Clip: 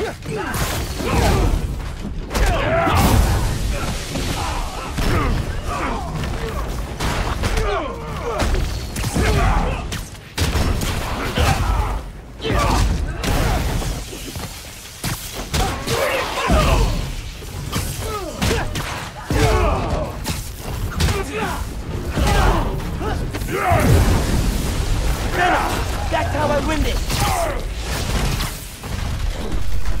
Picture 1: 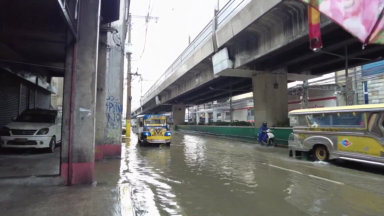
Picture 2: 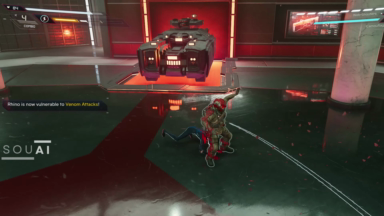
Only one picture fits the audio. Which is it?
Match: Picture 2